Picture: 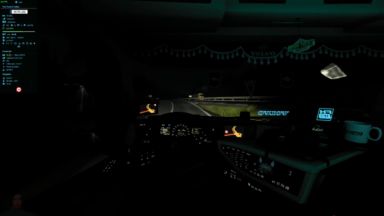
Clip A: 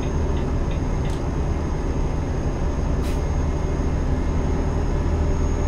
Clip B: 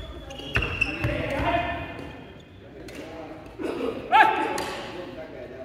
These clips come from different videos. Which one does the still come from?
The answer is A